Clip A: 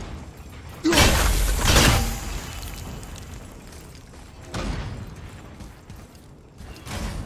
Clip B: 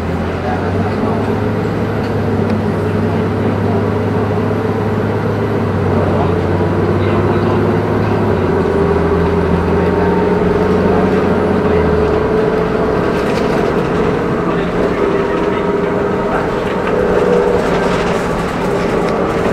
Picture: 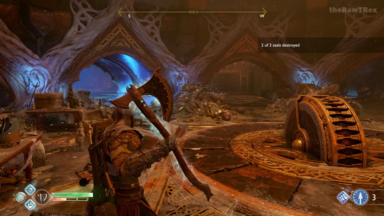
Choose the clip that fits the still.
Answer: A